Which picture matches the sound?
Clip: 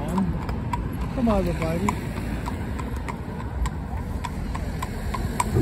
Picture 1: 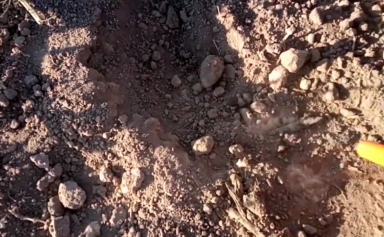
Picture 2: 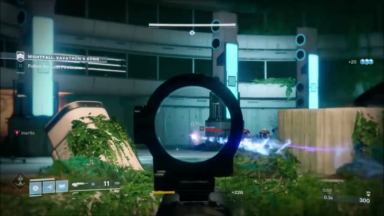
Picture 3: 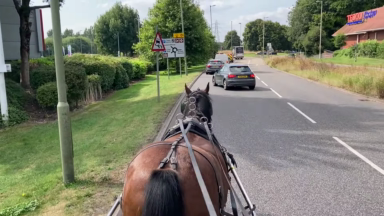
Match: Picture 3